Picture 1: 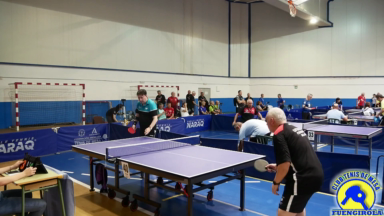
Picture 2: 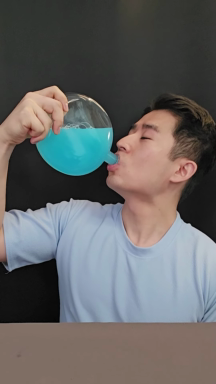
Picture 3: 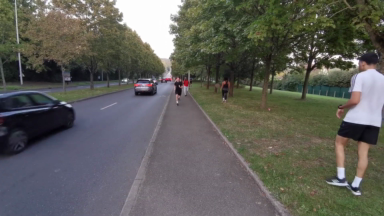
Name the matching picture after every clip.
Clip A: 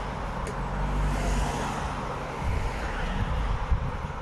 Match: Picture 3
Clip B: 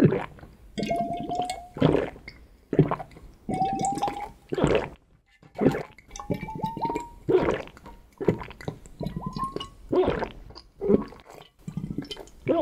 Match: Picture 2